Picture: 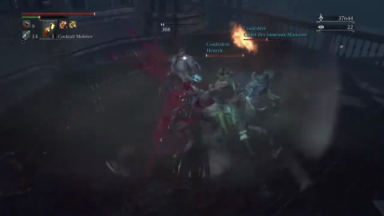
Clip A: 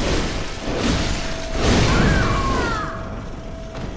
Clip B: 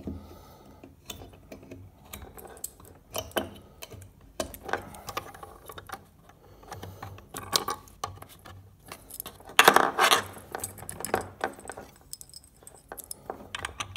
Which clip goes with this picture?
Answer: A